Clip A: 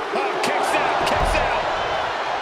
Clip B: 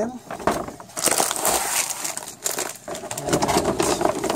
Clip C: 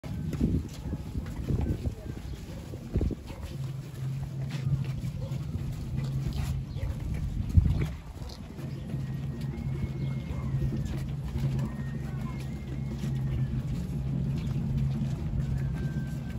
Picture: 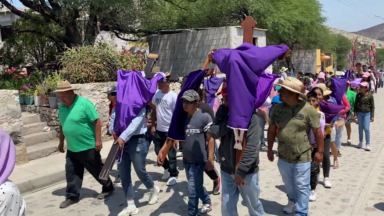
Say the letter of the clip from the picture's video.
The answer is C